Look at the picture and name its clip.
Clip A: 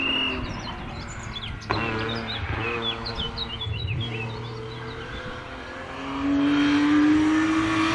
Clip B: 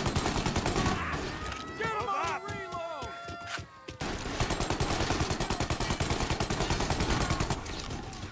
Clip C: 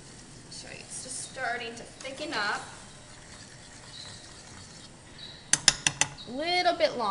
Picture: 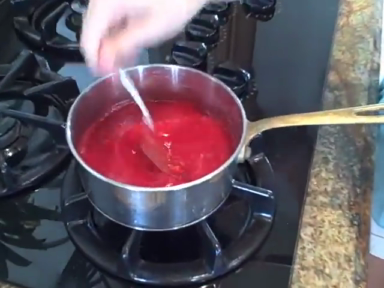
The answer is C